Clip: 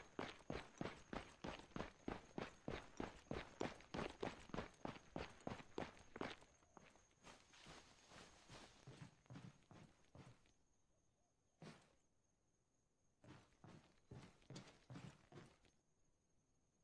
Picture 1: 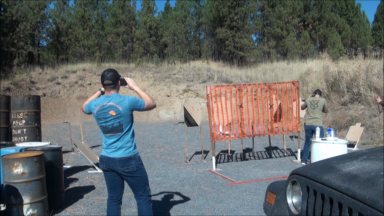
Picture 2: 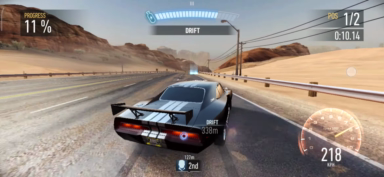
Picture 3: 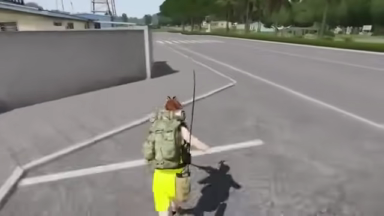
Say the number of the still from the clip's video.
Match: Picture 3